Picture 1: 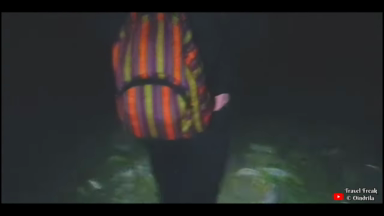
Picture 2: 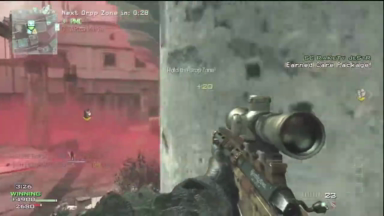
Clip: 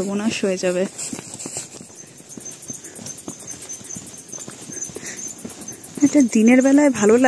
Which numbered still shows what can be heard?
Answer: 1